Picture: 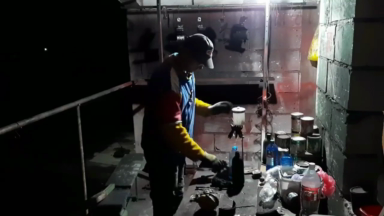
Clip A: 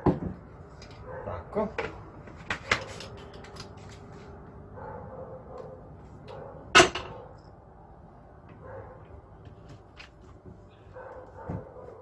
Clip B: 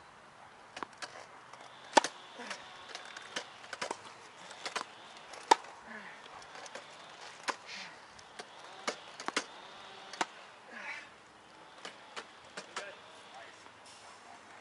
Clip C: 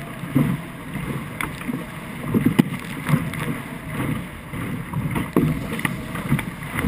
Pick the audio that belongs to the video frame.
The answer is A